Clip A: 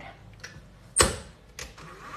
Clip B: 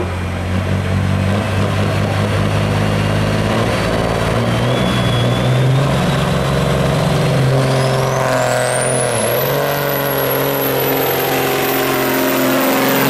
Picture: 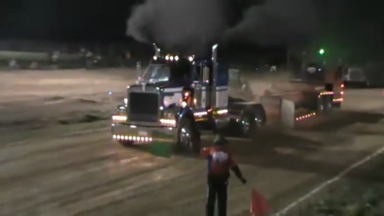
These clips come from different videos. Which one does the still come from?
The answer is B